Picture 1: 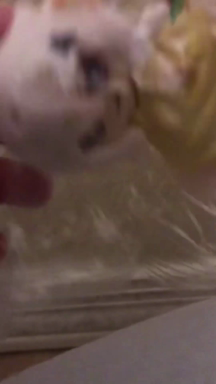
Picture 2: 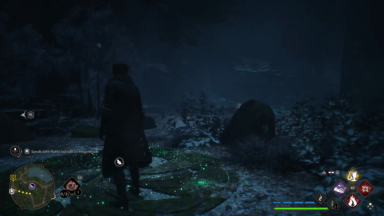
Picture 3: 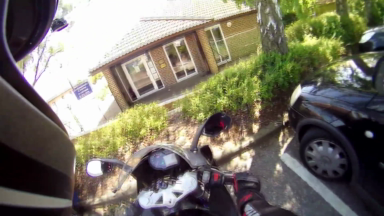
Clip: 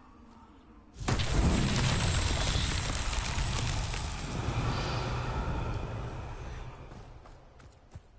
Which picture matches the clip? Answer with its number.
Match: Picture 2